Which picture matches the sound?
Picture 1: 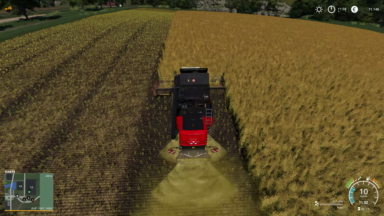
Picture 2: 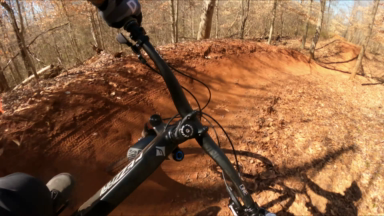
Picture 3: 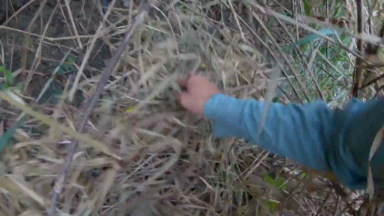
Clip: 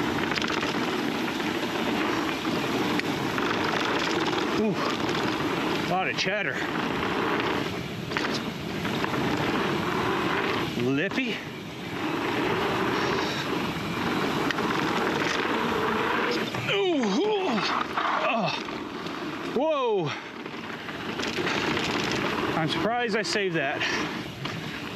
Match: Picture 2